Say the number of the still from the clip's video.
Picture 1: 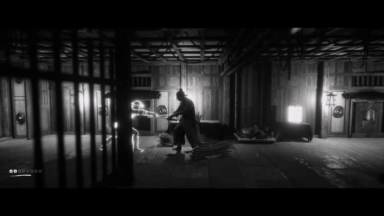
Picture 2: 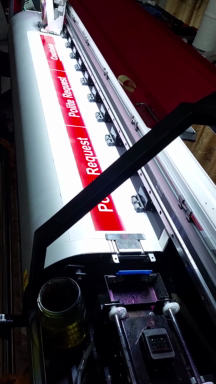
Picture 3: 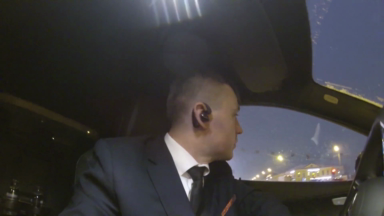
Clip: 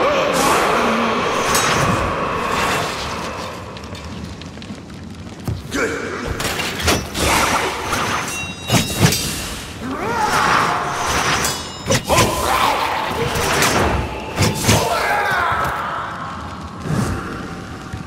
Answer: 1